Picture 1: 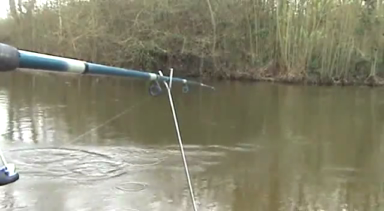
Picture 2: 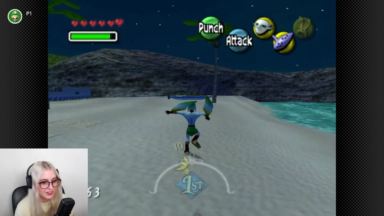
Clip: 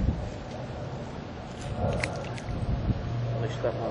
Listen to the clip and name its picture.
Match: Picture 1